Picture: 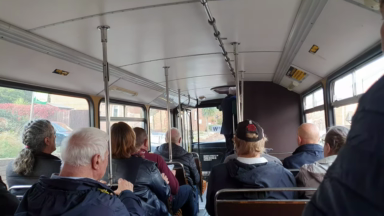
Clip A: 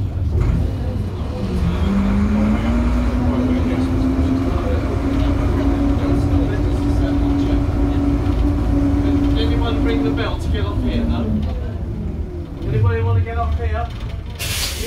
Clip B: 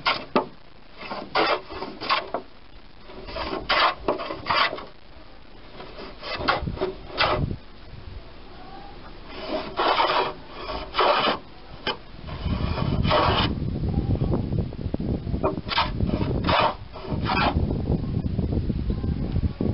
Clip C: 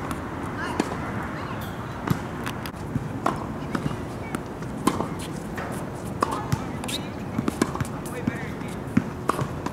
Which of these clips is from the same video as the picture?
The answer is A